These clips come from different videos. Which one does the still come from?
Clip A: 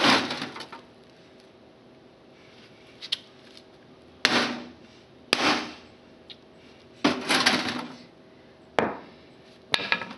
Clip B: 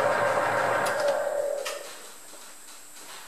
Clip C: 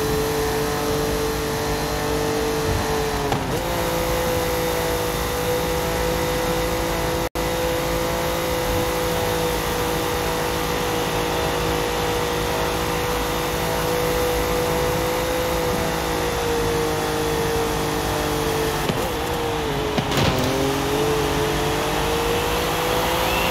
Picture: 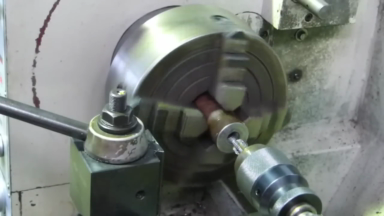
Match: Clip B